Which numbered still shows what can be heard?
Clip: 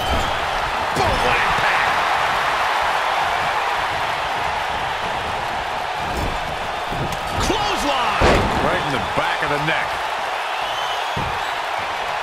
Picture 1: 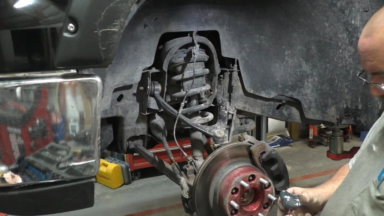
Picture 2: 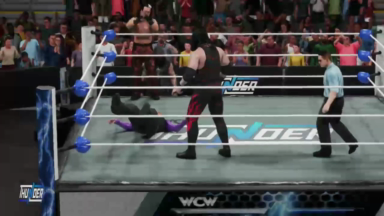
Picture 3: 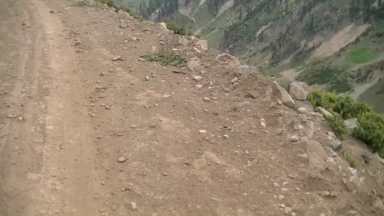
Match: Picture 2